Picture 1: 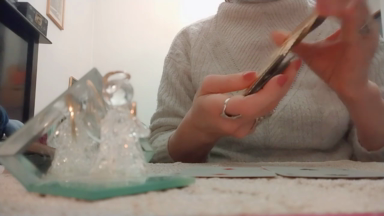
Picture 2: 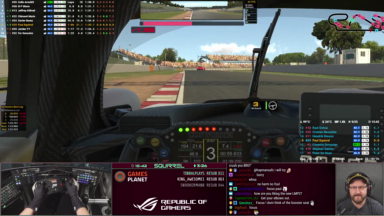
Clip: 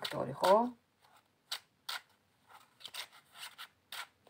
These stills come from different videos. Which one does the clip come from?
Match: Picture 1